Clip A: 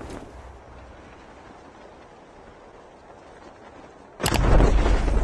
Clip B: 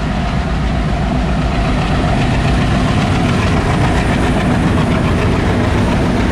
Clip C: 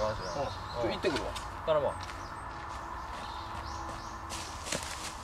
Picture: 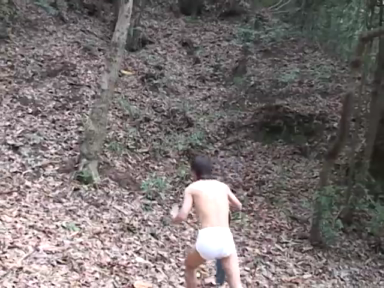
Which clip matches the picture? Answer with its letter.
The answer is C